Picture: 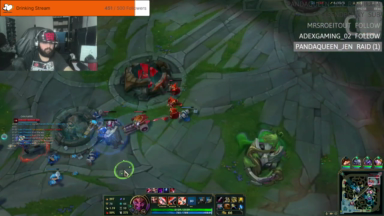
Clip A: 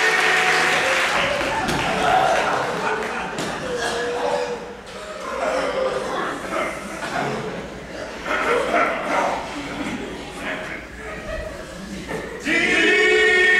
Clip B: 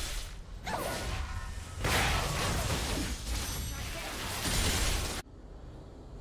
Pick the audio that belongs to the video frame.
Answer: B